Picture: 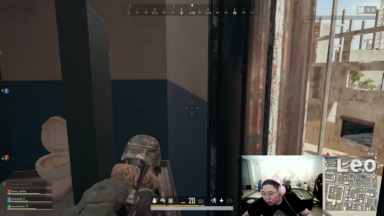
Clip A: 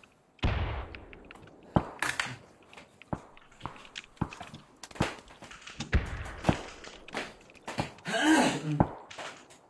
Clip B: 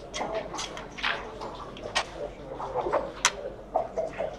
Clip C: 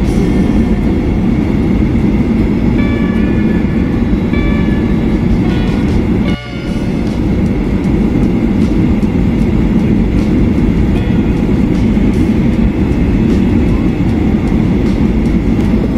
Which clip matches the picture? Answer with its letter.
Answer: A